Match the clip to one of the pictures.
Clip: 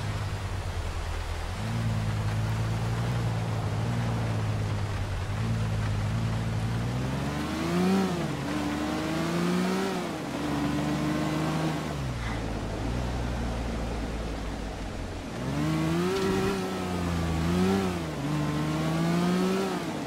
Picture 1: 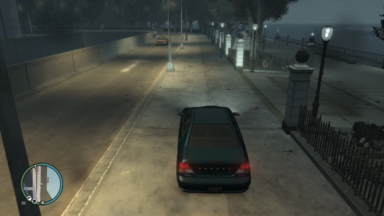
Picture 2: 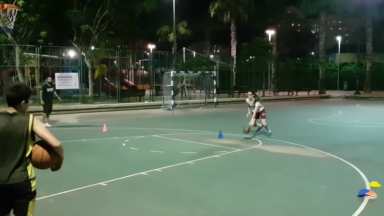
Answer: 1